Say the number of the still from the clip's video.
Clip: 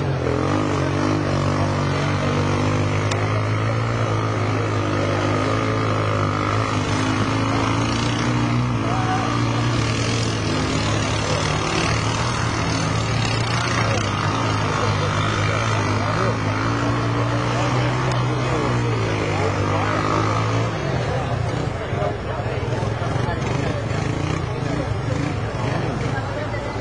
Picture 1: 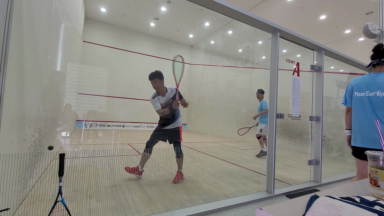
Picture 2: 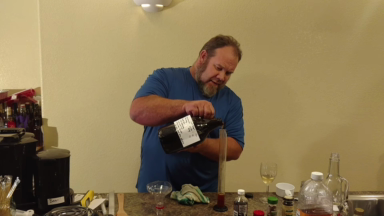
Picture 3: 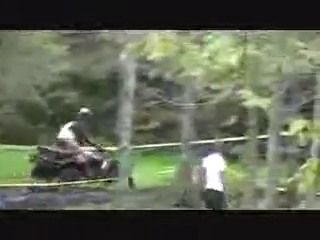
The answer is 3